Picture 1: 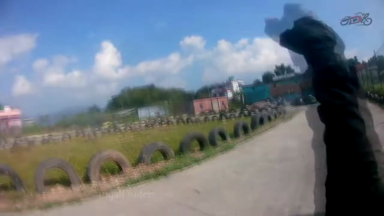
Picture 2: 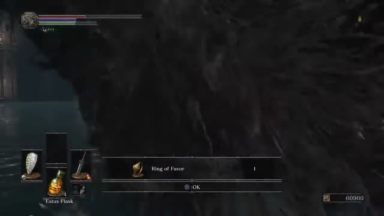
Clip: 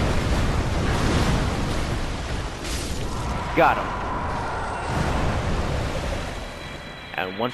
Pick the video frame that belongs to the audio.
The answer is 2